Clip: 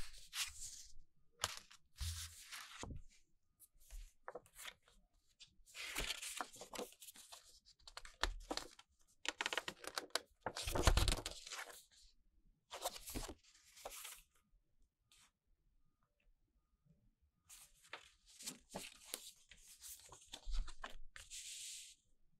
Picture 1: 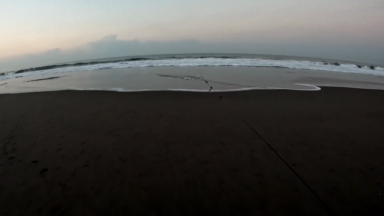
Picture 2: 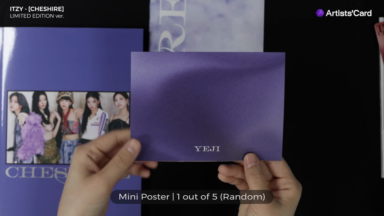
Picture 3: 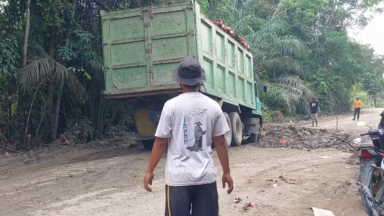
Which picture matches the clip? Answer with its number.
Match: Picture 2